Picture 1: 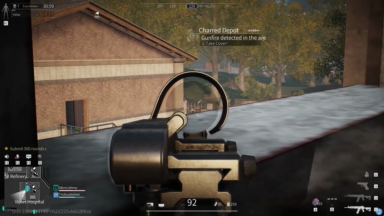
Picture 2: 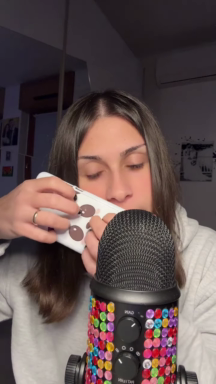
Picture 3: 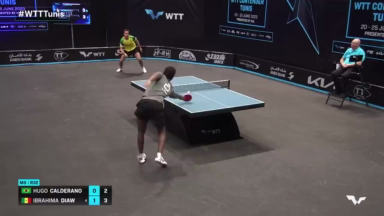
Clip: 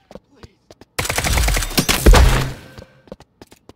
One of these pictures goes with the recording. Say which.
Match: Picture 1